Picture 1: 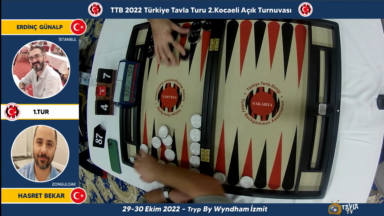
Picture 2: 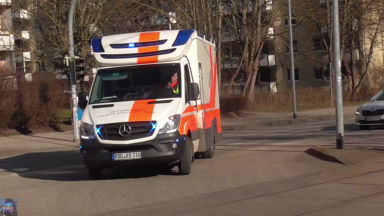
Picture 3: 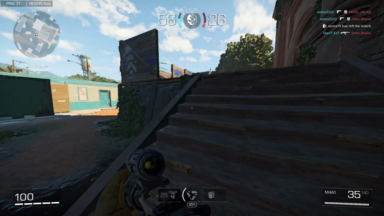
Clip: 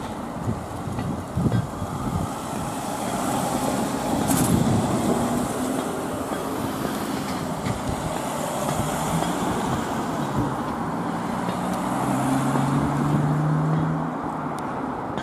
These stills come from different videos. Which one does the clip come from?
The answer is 2